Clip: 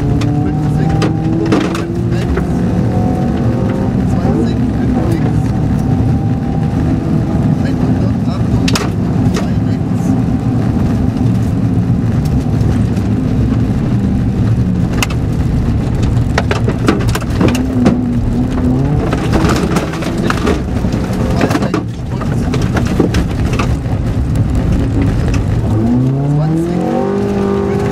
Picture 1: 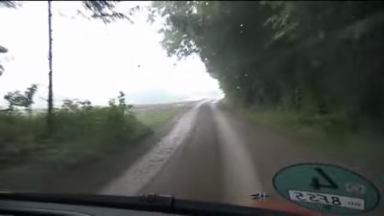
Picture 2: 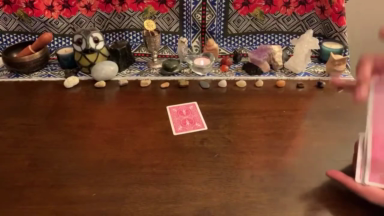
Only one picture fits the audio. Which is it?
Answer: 1